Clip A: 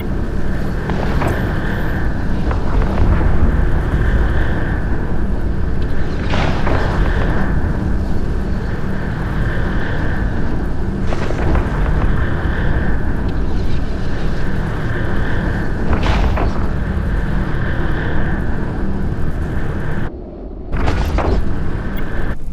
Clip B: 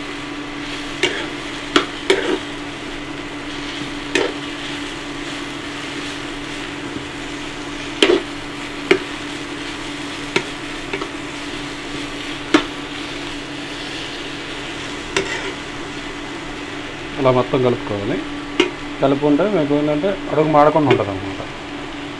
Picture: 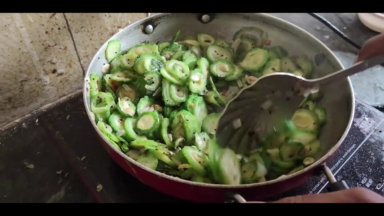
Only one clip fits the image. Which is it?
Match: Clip B